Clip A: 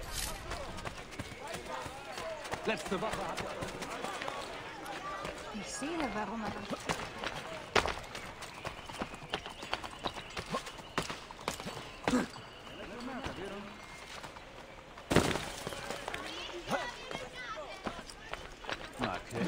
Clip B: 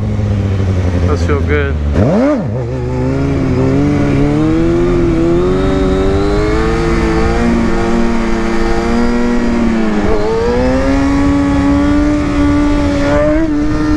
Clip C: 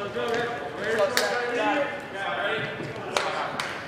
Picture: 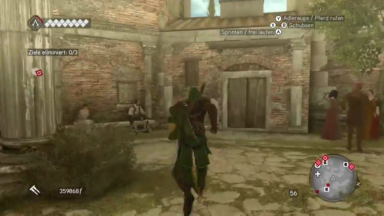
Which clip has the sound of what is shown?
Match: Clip A